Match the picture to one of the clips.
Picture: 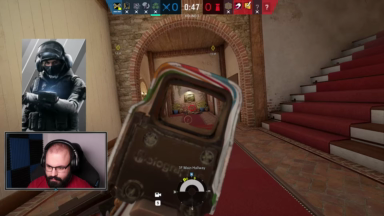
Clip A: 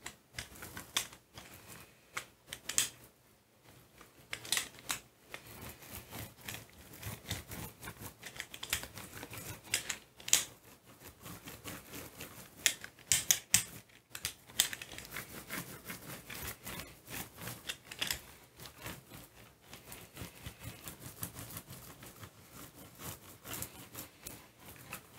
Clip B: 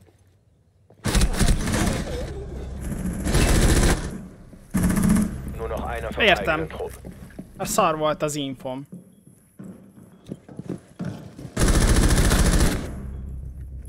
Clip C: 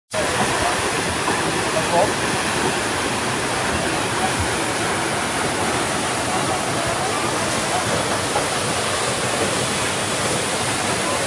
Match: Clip B